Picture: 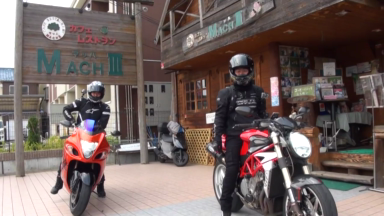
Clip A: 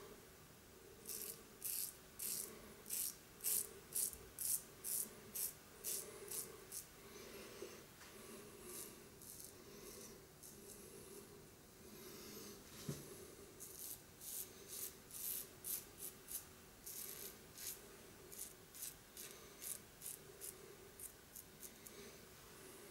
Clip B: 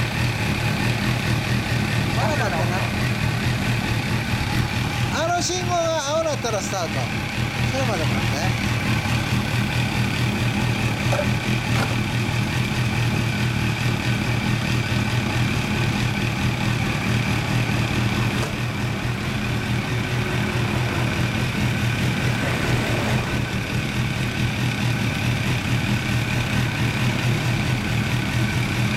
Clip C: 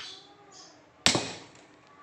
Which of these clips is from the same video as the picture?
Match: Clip B